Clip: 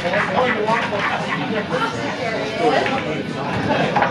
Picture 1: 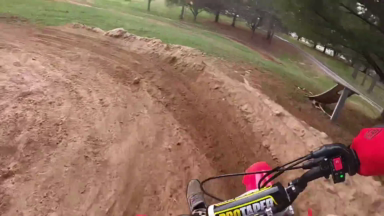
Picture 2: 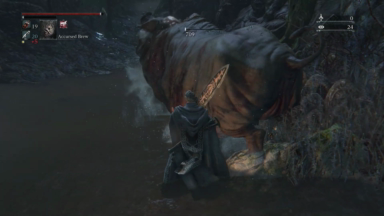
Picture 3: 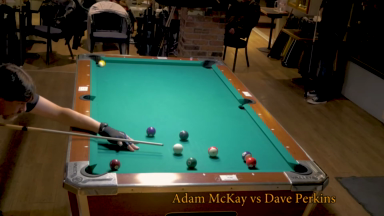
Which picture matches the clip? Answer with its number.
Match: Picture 3